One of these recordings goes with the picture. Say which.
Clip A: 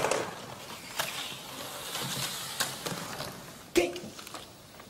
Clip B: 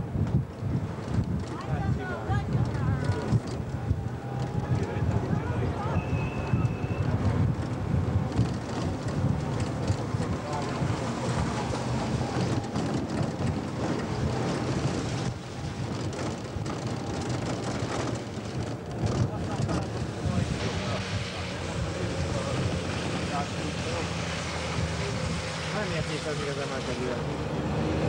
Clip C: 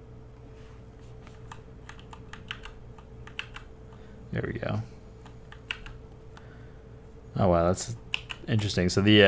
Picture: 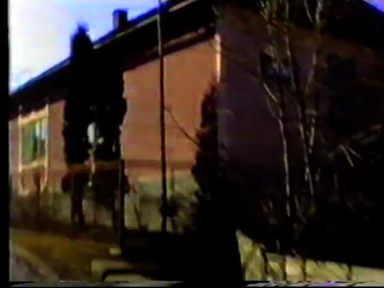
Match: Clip B